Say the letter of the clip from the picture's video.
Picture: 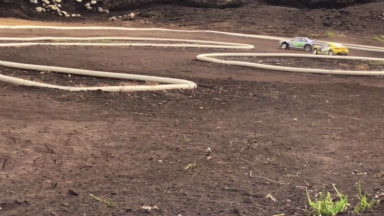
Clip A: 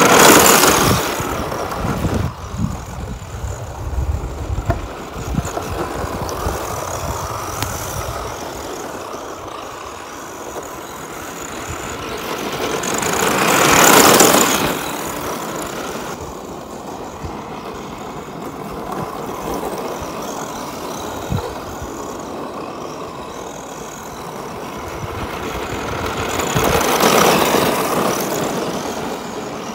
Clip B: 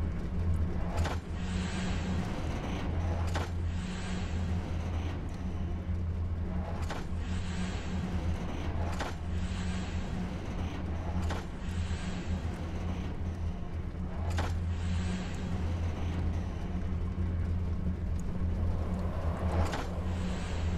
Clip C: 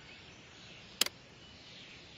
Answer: A